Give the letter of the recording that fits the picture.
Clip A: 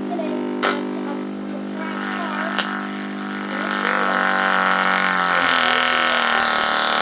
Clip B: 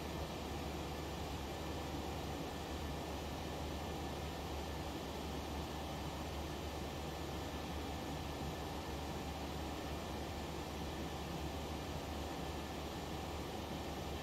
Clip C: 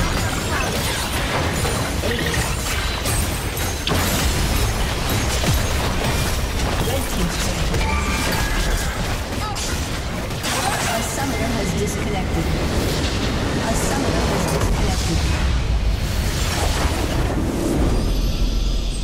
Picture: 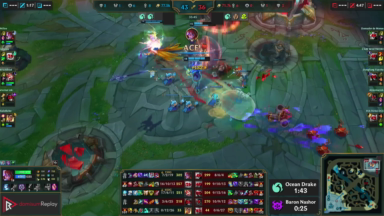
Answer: C